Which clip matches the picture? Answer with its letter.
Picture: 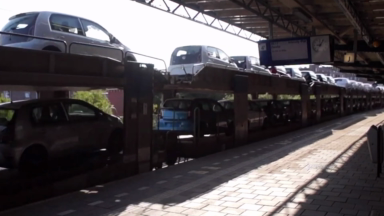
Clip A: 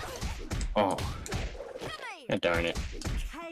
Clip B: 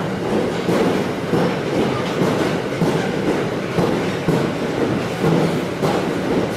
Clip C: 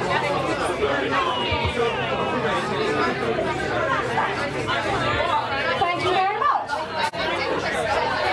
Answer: B